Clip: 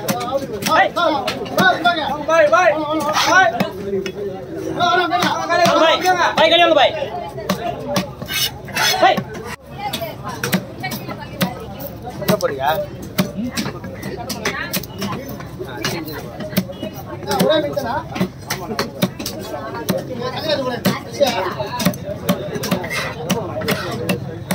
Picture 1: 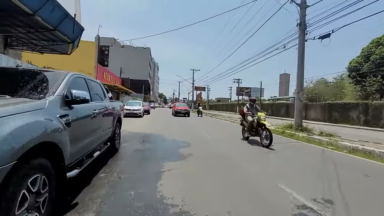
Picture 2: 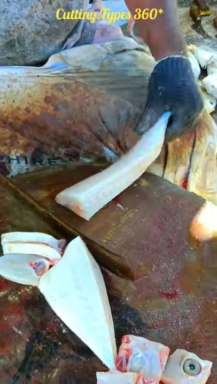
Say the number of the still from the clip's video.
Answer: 2